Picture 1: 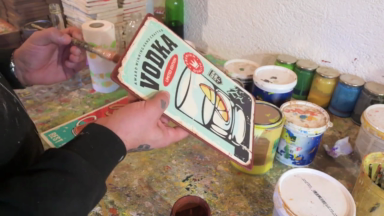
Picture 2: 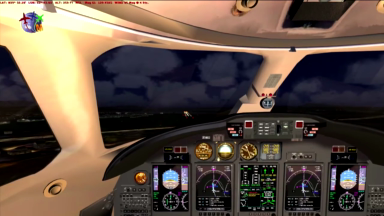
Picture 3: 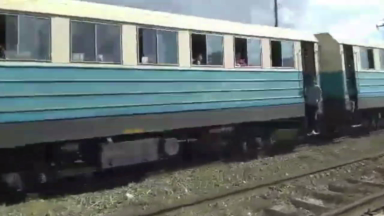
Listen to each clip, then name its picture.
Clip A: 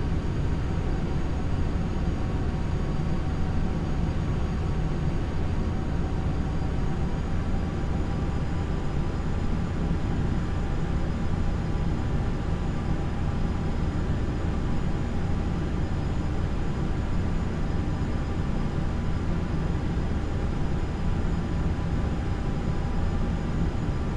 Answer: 2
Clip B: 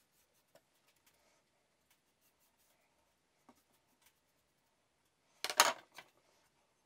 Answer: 1